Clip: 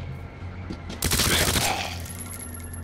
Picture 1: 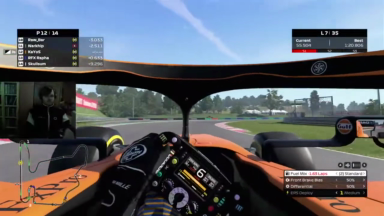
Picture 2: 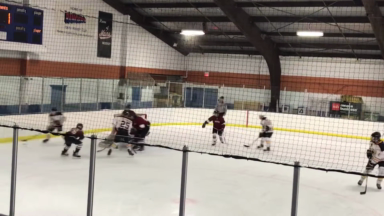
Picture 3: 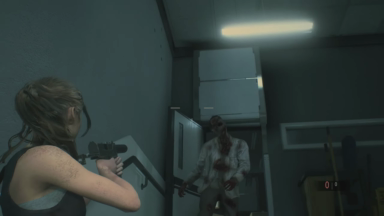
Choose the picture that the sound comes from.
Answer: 3